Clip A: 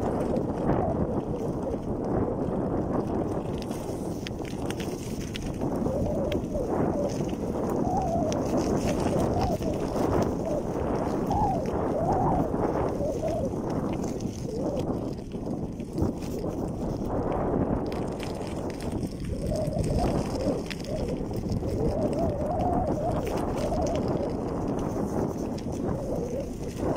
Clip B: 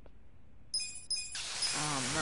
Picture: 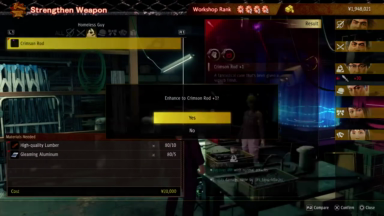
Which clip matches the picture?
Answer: B